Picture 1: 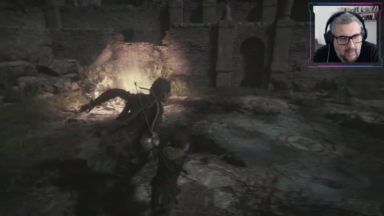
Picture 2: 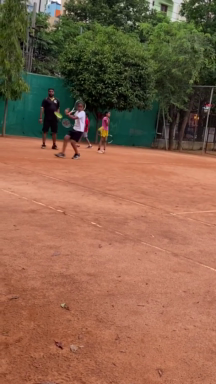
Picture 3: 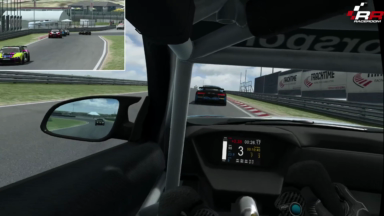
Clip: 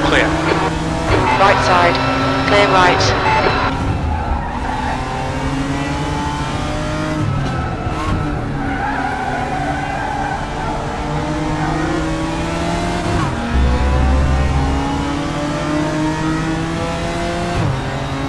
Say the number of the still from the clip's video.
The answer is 3